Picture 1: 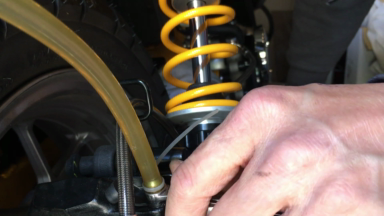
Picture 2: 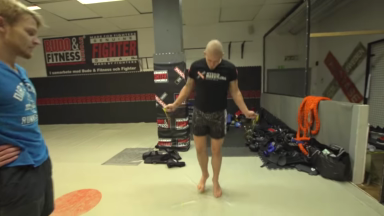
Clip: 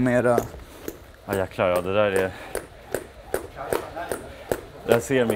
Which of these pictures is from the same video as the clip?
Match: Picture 2